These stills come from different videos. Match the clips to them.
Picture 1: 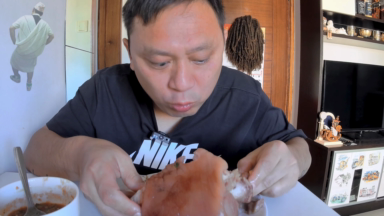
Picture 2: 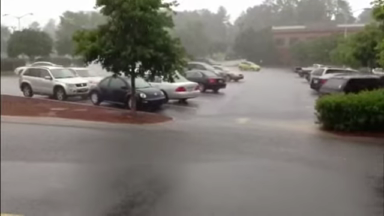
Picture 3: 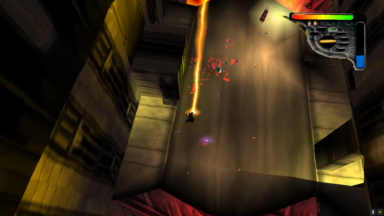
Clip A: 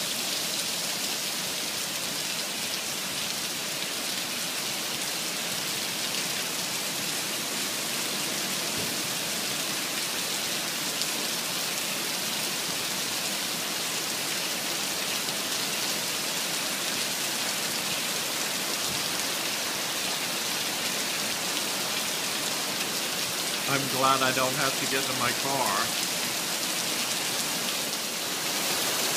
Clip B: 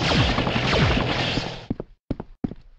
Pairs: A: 2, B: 3